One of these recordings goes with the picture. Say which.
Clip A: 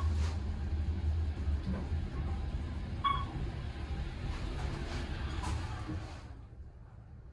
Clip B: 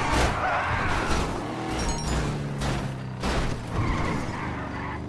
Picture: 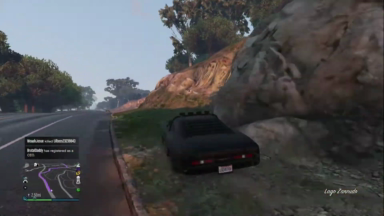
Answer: B